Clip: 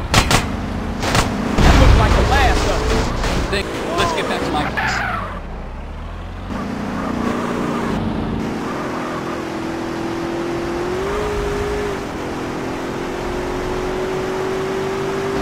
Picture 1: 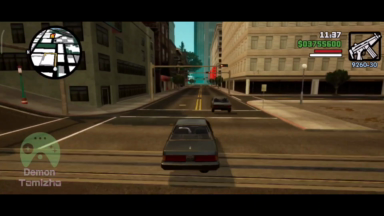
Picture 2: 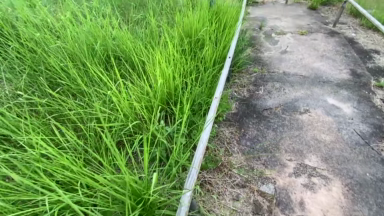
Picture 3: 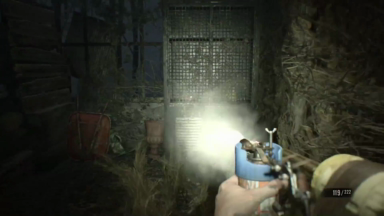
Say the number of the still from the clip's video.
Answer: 1